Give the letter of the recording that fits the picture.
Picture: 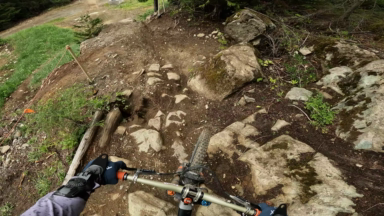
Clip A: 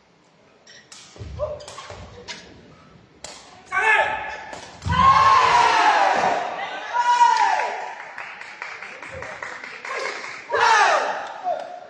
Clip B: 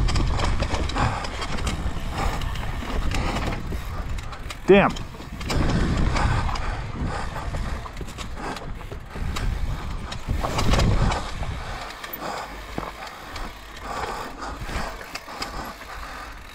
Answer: B